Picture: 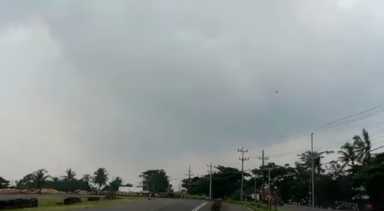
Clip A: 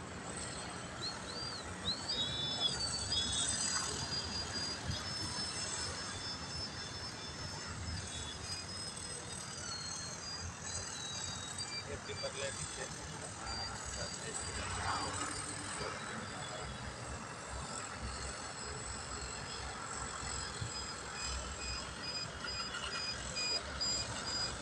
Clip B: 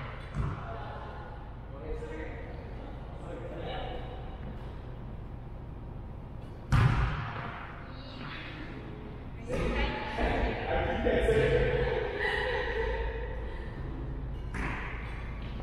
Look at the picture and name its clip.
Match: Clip A